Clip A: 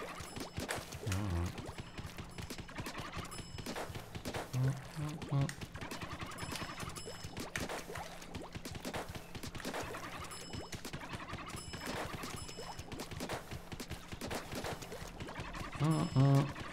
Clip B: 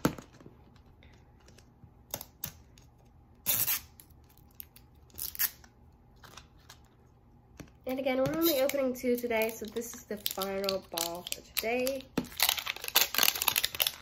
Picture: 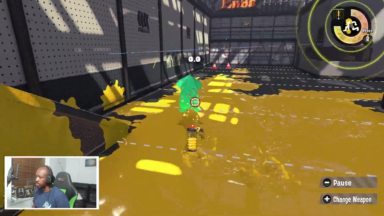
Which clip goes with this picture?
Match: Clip A